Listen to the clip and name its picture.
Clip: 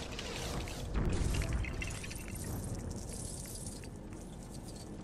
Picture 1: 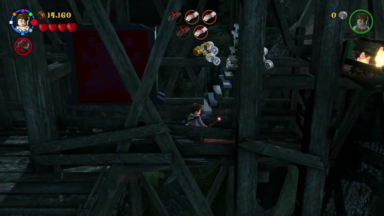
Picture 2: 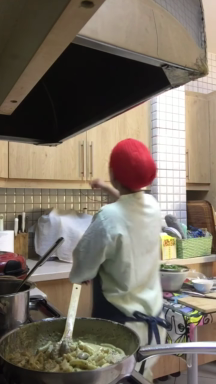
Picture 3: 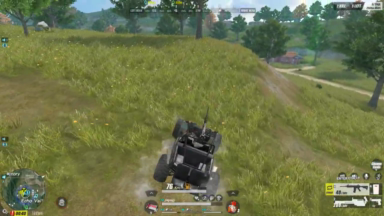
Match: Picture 1